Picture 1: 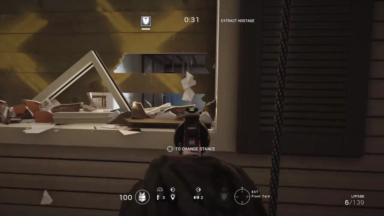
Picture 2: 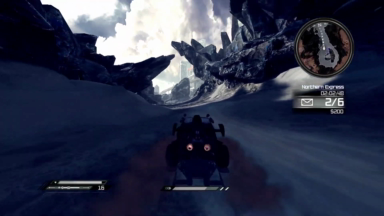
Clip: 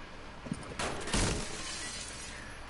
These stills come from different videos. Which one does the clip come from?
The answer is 1